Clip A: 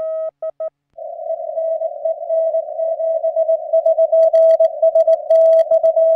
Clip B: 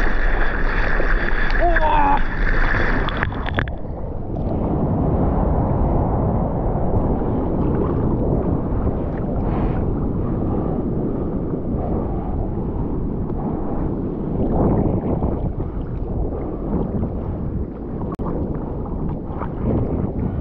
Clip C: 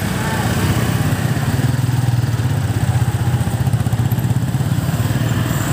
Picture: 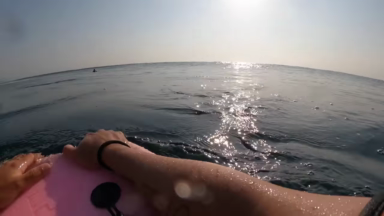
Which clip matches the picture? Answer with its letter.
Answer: B